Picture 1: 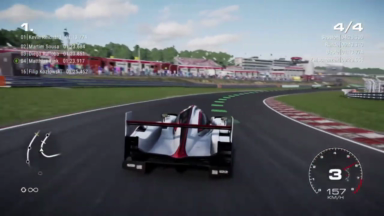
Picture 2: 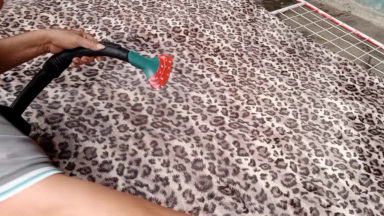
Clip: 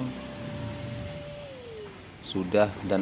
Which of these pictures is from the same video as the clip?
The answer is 2